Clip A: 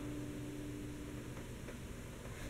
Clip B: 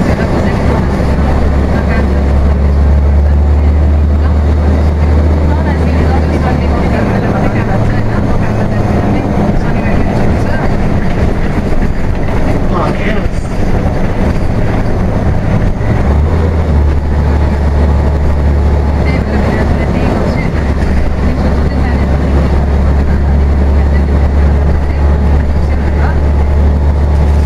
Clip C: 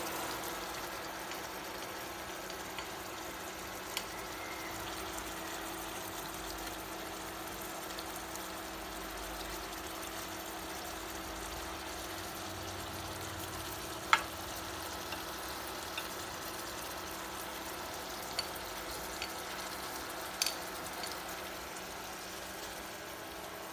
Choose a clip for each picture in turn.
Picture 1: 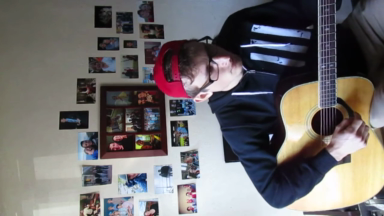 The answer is A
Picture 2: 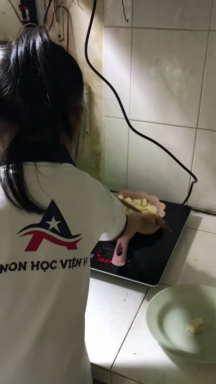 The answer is C